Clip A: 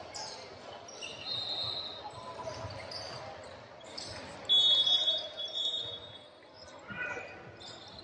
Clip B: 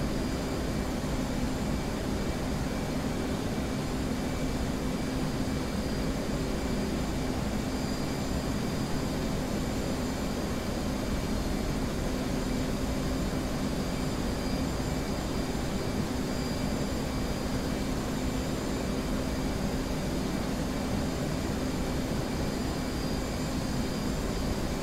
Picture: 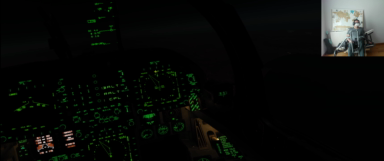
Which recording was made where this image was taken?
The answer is B